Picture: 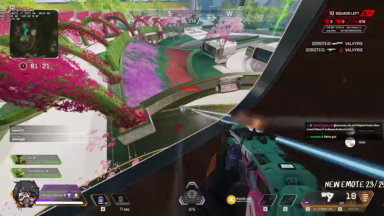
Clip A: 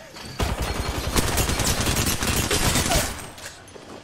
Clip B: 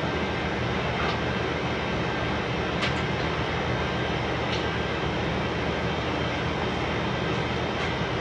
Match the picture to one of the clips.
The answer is A